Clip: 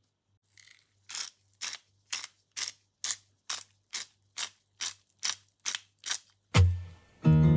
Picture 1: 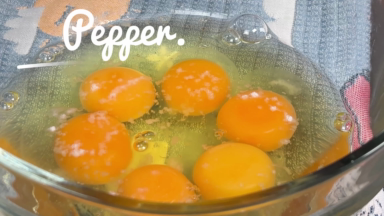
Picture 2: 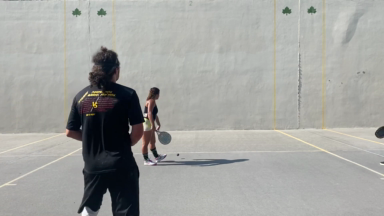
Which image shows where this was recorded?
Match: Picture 1